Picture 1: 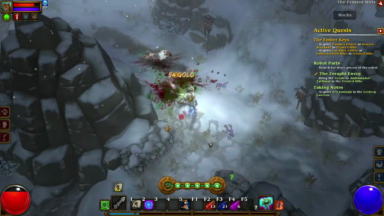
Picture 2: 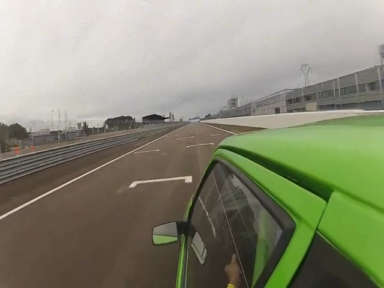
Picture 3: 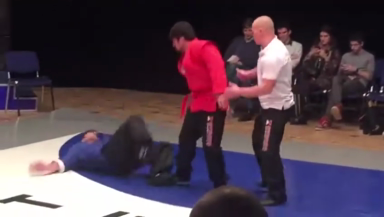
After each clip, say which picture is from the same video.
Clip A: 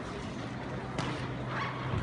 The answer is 3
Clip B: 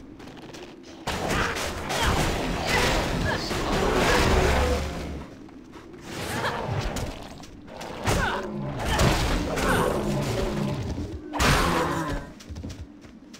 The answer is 1